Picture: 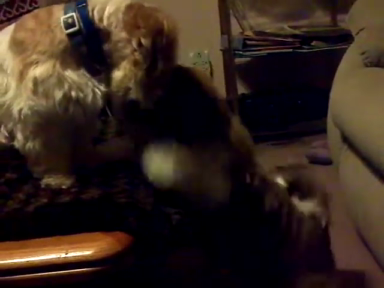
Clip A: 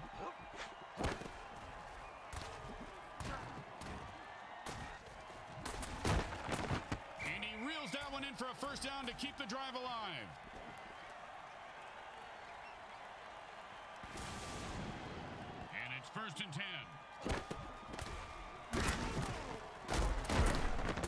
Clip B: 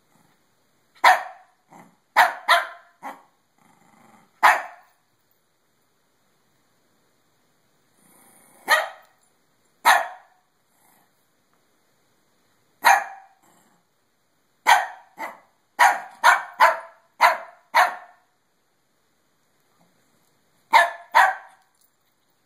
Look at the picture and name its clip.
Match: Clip B